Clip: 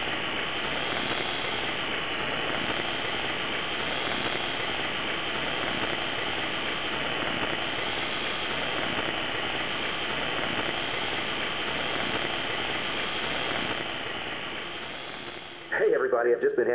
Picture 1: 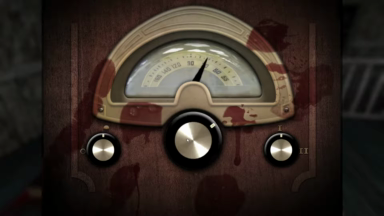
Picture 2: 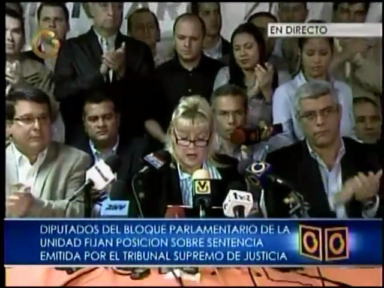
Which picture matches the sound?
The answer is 1